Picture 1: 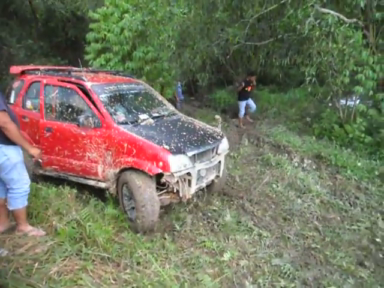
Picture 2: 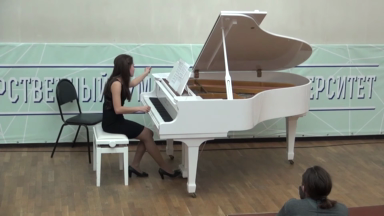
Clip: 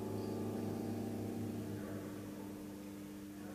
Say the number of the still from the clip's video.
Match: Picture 2